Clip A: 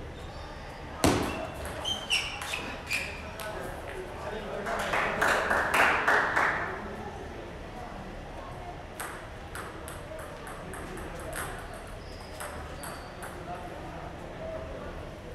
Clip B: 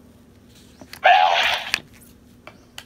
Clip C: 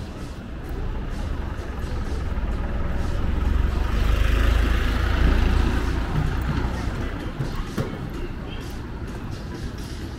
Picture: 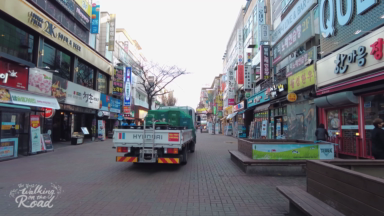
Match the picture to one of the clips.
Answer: C